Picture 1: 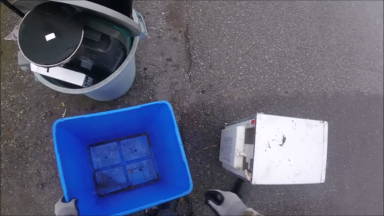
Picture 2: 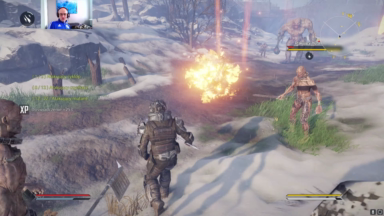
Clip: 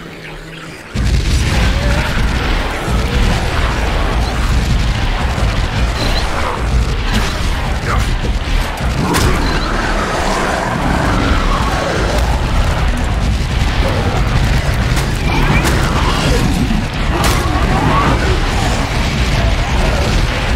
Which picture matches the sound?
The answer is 2